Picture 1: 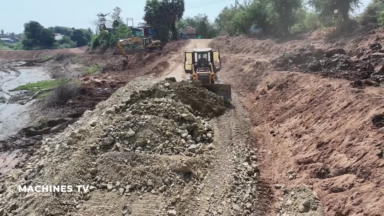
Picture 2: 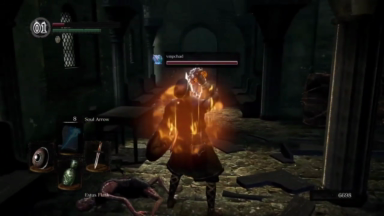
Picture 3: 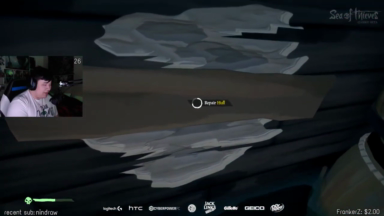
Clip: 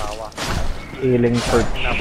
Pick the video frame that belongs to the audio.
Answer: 2